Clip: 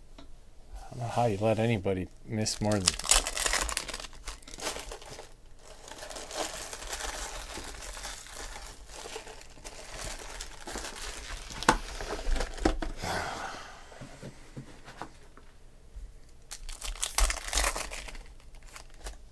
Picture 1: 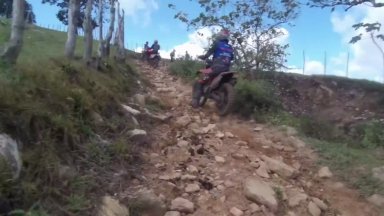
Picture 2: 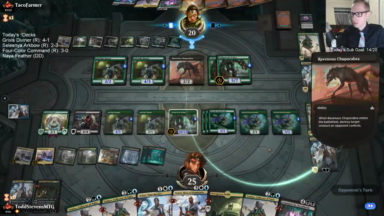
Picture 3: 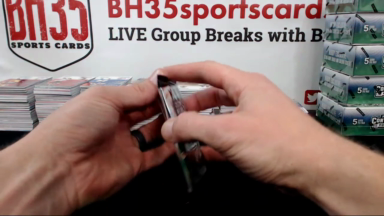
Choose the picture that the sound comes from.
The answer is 3